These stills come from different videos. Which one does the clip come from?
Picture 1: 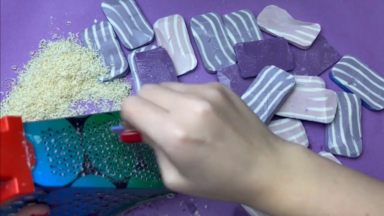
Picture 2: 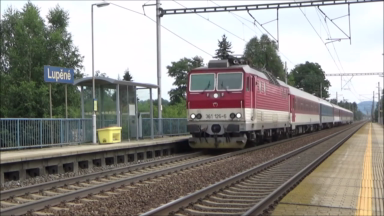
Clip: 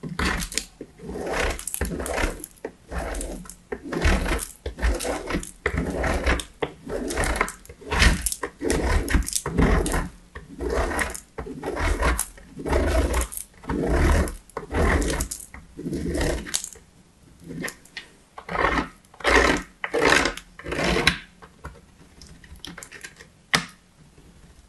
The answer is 1